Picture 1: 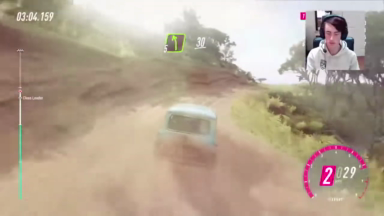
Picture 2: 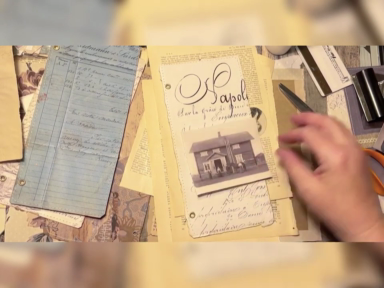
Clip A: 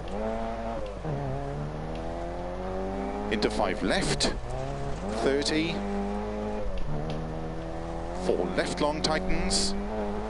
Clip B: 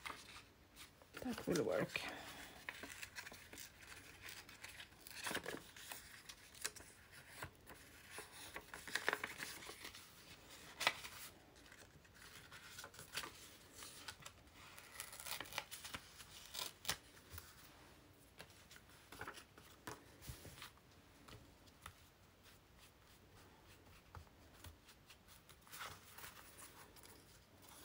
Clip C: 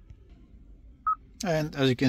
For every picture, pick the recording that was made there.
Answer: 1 A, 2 B